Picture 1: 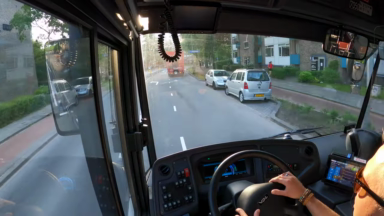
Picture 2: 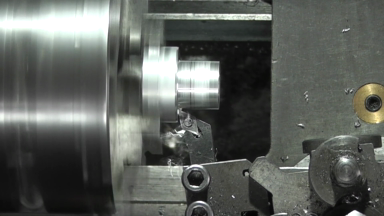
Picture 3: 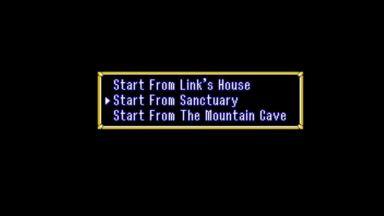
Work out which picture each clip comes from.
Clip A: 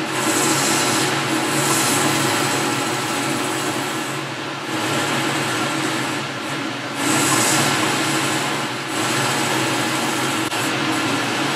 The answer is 2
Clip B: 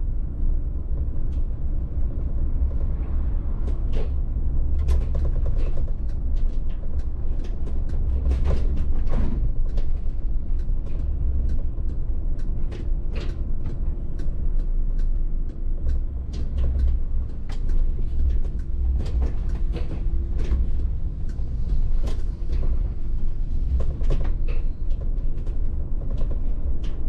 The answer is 1